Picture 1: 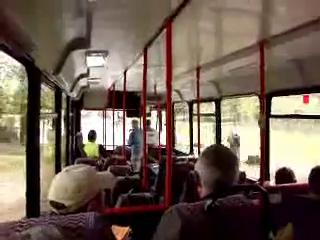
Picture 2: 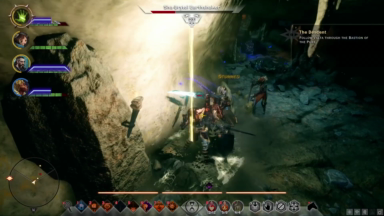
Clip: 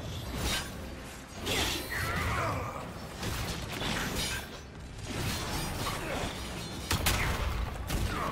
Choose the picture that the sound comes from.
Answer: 2